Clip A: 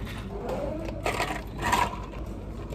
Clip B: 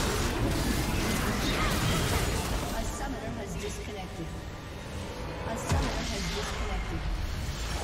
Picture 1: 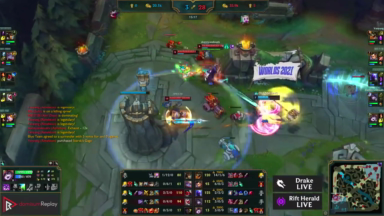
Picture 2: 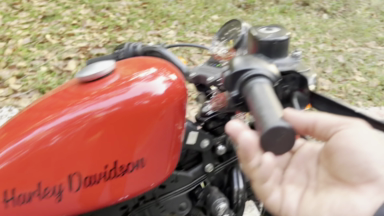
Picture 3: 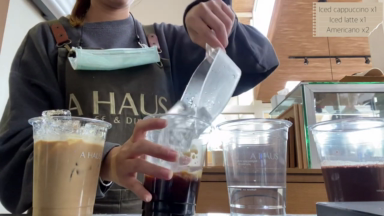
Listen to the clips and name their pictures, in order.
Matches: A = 3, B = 1